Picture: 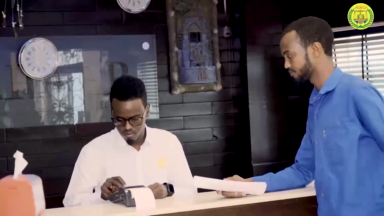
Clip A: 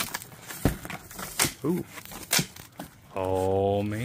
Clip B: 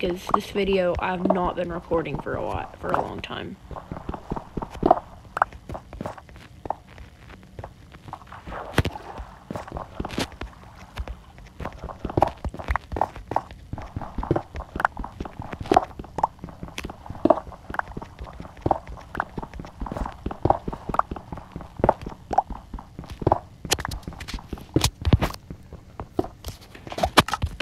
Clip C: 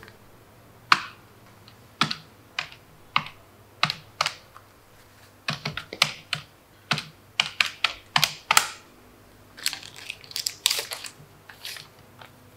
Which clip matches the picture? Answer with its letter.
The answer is C